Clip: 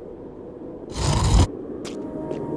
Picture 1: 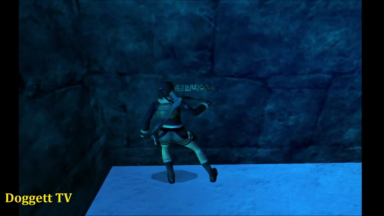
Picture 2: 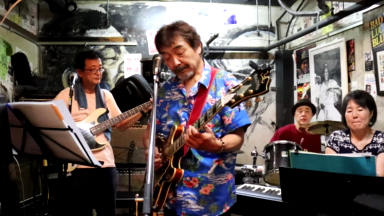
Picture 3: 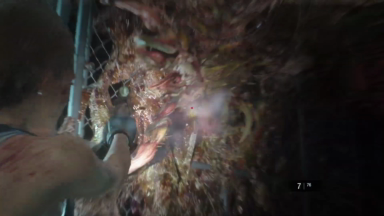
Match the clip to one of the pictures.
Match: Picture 1